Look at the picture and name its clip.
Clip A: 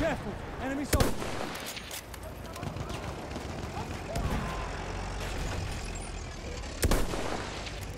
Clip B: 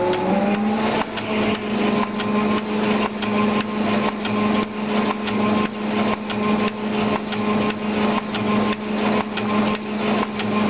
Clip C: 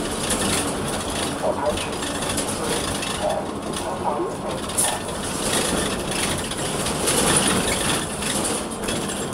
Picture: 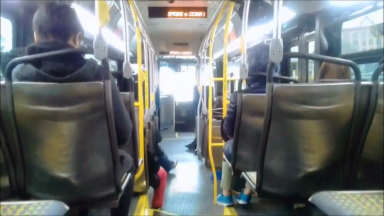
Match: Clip C